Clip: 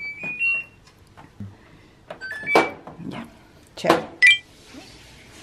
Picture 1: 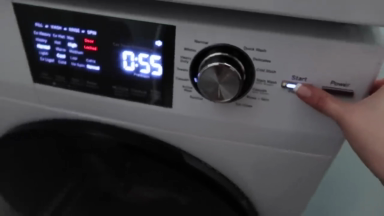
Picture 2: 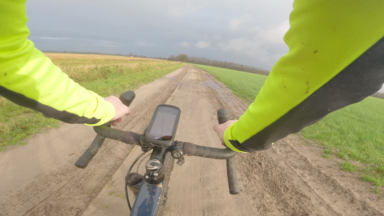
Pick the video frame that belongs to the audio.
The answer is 1